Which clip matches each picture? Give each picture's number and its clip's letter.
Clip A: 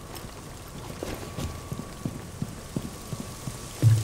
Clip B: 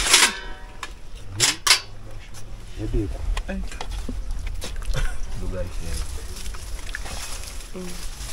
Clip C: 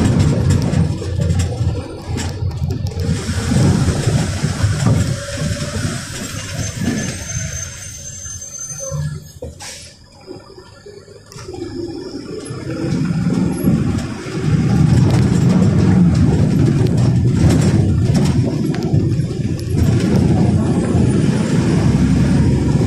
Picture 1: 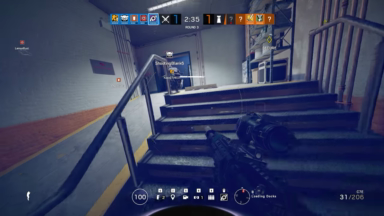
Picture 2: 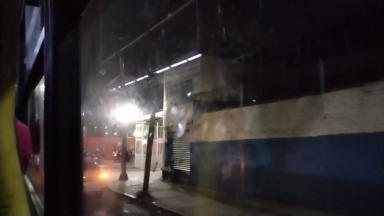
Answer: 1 A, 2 C